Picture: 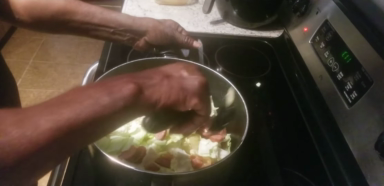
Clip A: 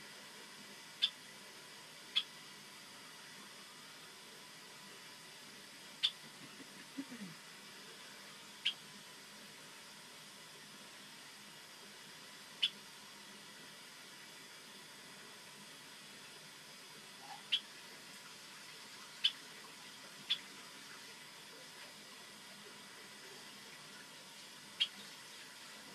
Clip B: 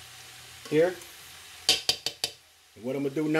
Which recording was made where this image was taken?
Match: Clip B